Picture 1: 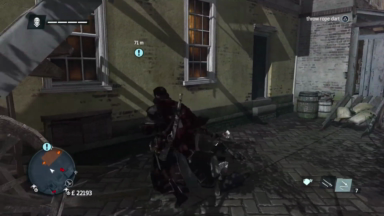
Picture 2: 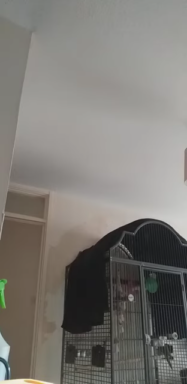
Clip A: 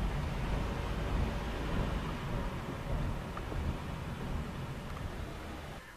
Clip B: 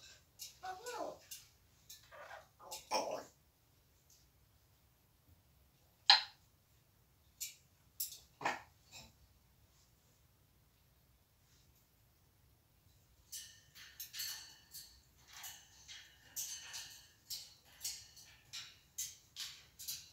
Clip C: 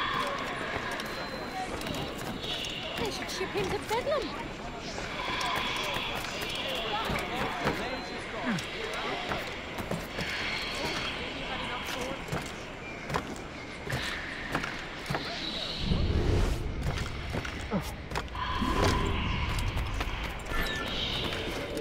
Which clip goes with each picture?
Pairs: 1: C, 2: B